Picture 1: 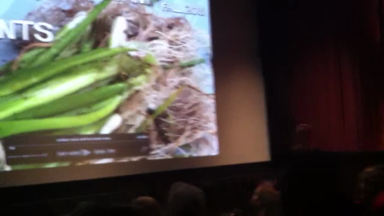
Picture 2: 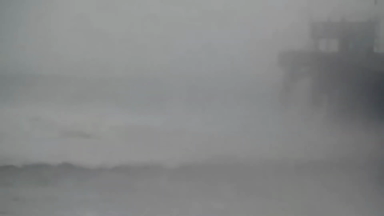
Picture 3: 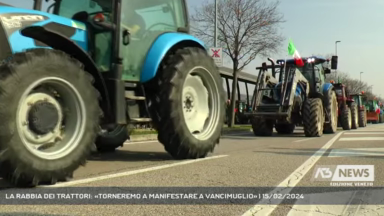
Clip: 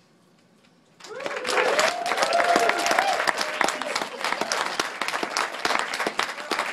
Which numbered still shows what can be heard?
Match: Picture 1